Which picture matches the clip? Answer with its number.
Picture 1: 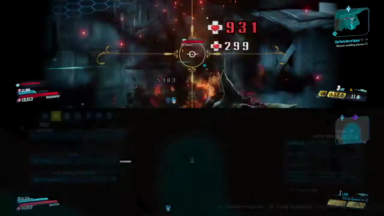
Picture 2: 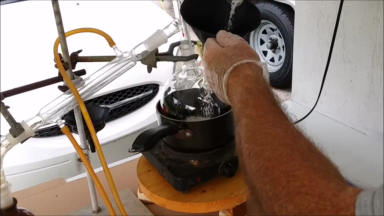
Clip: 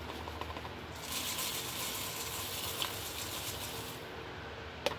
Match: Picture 2